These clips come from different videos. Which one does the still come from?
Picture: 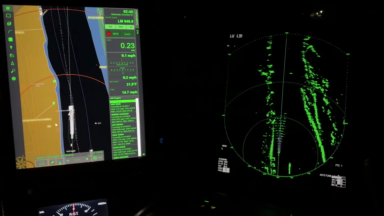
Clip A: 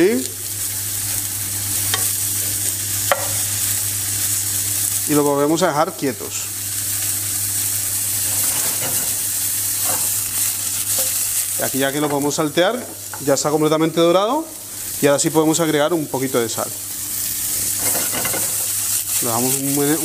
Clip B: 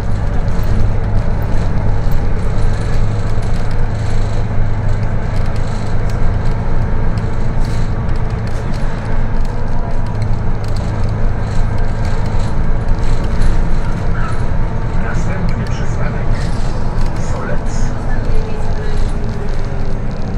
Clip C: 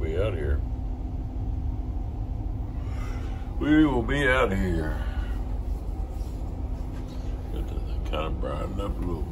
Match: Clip C